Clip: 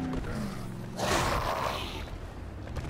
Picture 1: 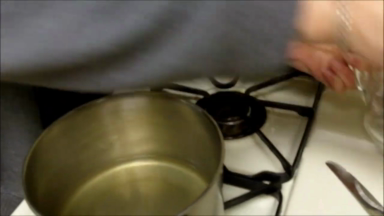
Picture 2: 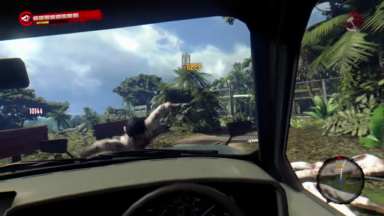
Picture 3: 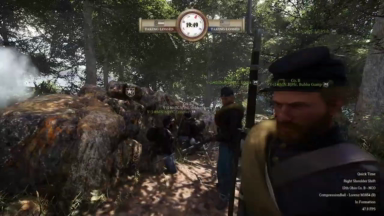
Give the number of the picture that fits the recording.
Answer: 2